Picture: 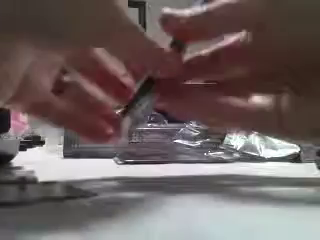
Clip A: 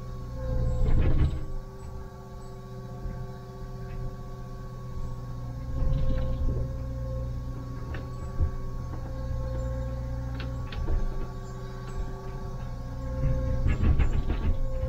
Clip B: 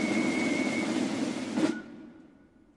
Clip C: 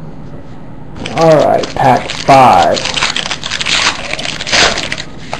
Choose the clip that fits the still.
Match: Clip C